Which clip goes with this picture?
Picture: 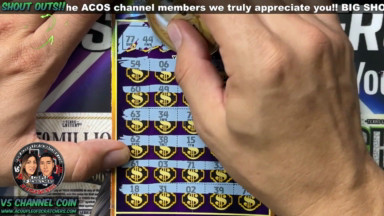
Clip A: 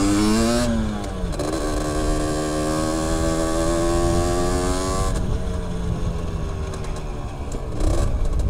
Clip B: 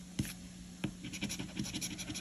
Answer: B